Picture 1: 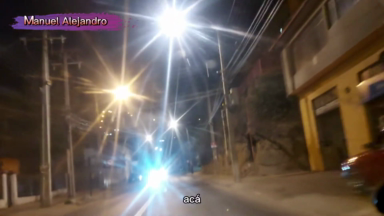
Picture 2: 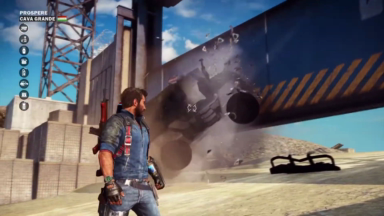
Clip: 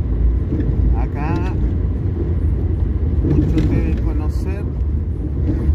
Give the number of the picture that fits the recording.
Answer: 1